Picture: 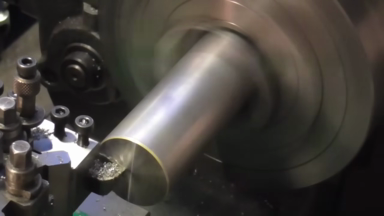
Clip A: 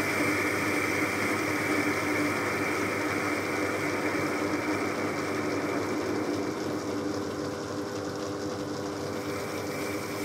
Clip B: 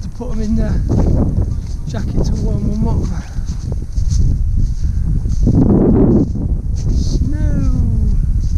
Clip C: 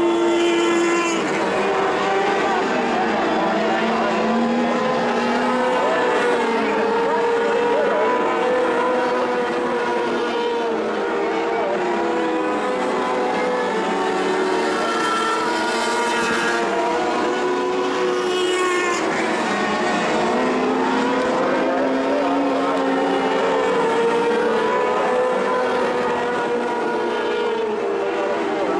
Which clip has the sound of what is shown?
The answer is A